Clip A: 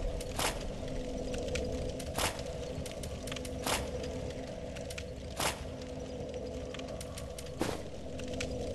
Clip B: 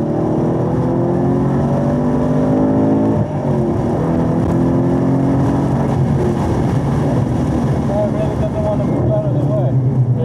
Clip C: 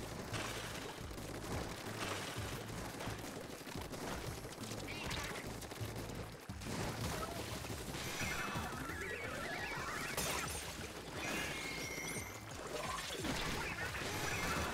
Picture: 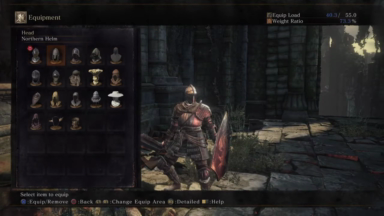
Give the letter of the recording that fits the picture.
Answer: A